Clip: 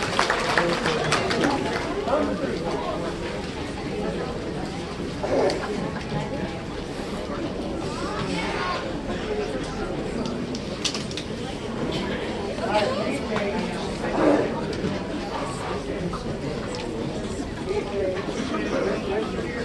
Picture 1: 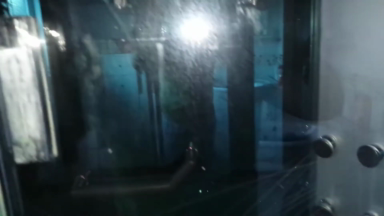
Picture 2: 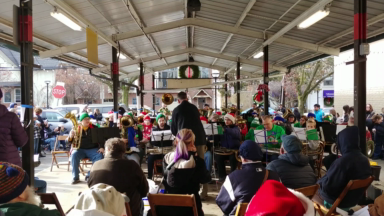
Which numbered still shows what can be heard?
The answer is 2